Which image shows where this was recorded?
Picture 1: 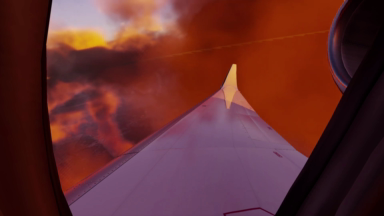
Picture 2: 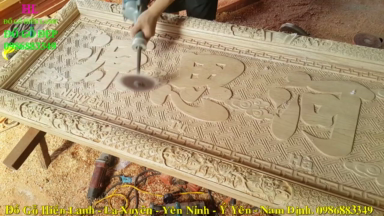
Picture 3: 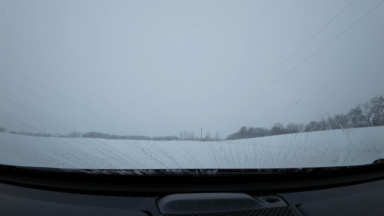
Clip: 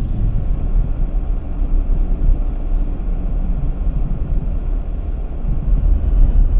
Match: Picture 3